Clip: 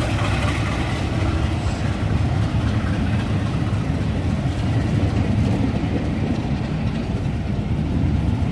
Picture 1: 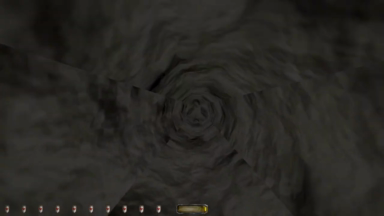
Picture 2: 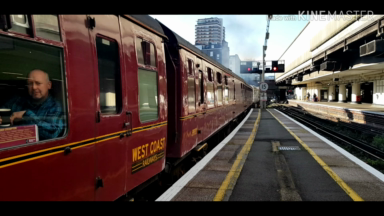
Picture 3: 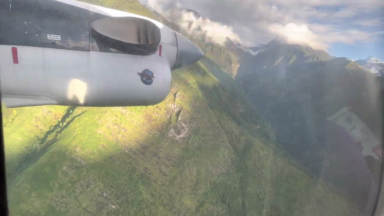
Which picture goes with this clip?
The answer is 2